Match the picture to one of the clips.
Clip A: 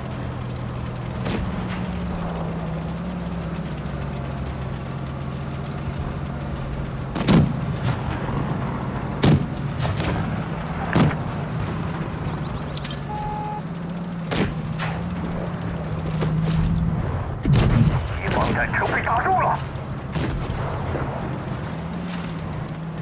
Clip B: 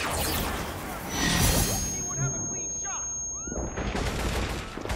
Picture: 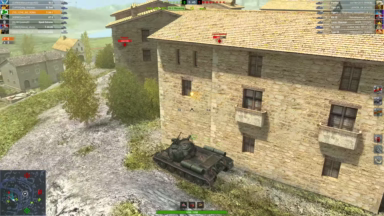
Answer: A